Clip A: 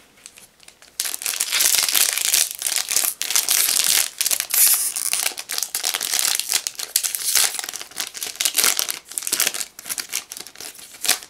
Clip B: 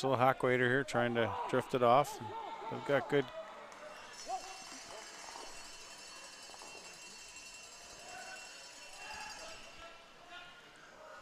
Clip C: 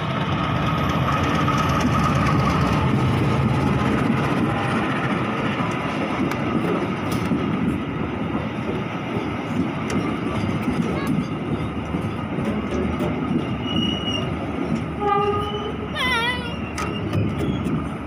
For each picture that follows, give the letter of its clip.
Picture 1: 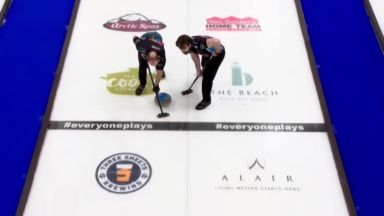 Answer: B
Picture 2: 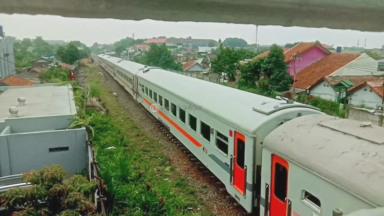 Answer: C